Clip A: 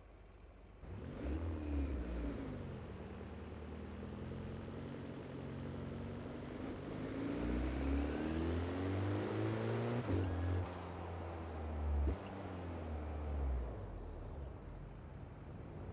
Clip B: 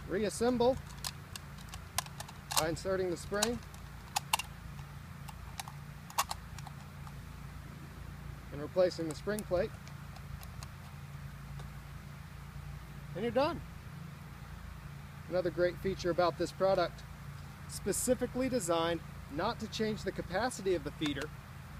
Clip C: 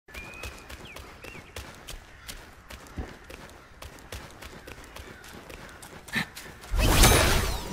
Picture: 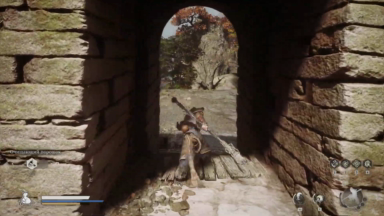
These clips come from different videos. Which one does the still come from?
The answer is C